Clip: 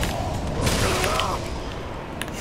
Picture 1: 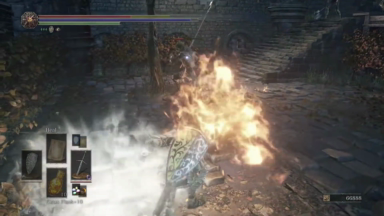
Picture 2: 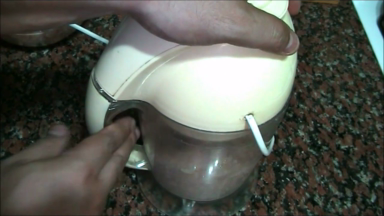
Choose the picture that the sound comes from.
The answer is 1